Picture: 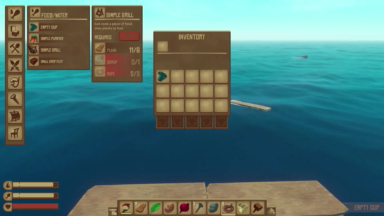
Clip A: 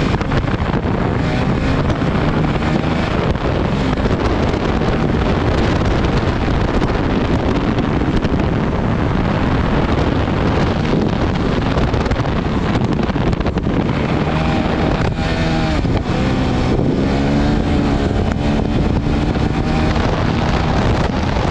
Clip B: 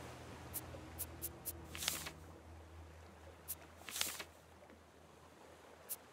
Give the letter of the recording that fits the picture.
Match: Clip B